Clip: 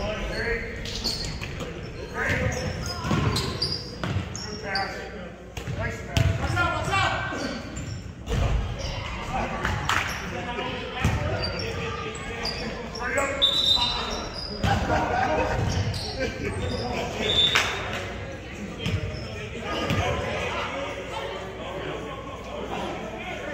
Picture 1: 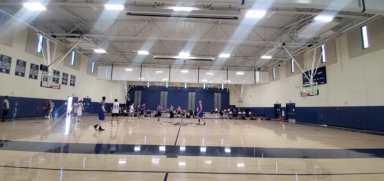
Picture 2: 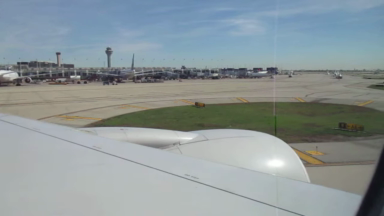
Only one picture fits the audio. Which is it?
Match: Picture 1